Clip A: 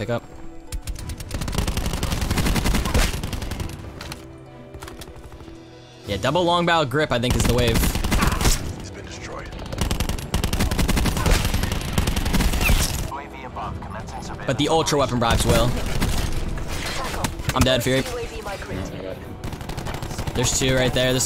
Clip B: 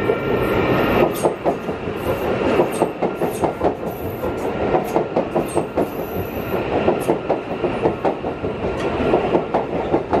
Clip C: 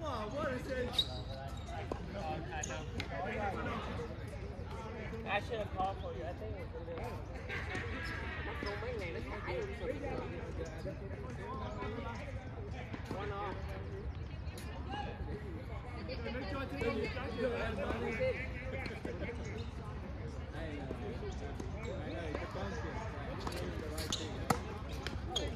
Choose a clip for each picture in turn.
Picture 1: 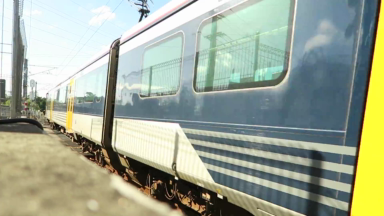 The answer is B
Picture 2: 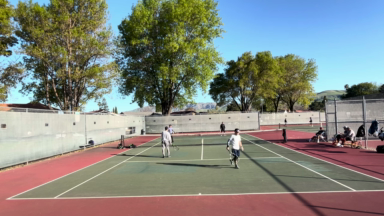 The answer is C